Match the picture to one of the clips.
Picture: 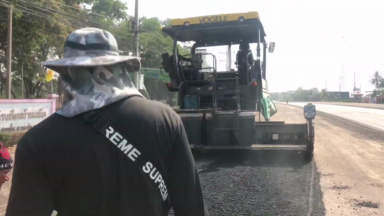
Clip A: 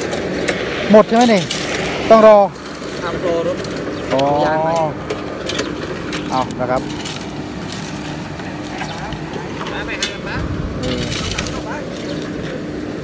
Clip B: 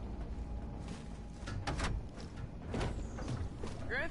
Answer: A